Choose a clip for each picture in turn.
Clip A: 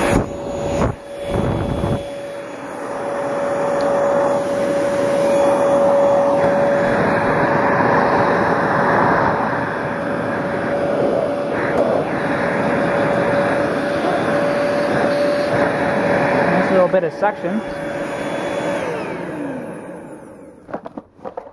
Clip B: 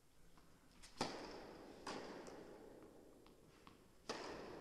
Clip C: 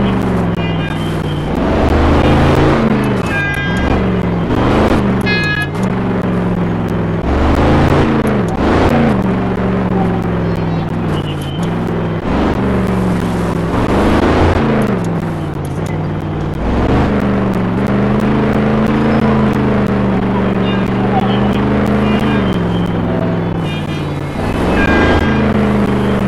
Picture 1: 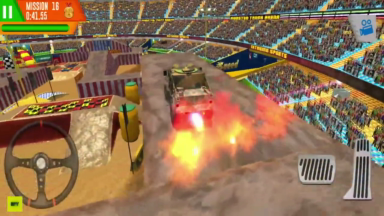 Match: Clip C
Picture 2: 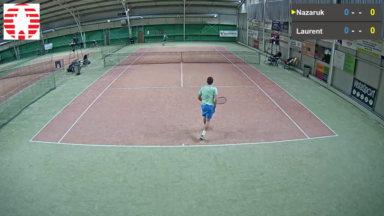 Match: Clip B